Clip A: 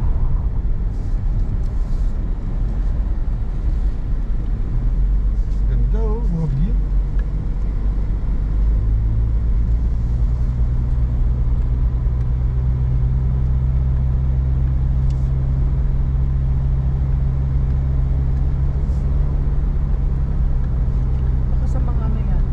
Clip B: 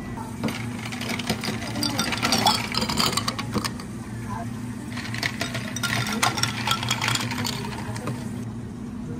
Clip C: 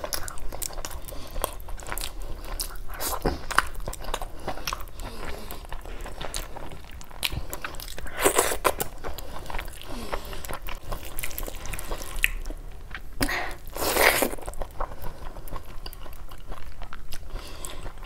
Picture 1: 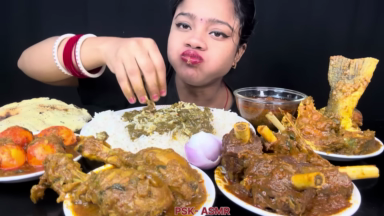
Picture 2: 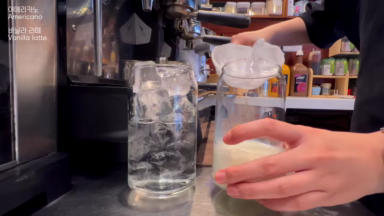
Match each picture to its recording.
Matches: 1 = C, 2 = B